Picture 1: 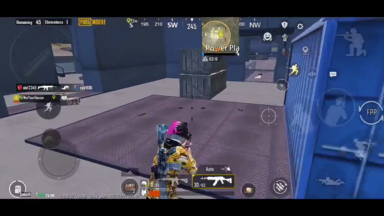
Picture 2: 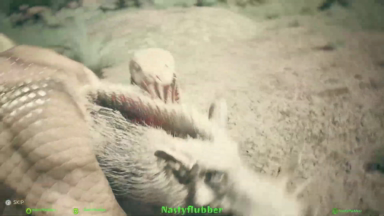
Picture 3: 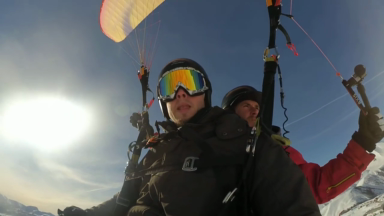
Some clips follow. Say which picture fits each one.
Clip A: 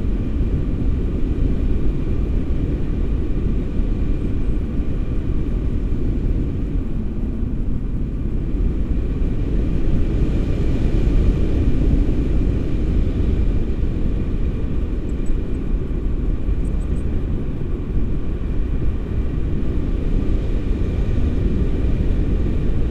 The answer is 3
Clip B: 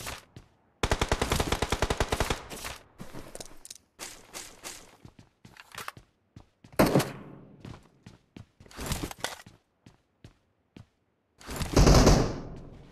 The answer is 1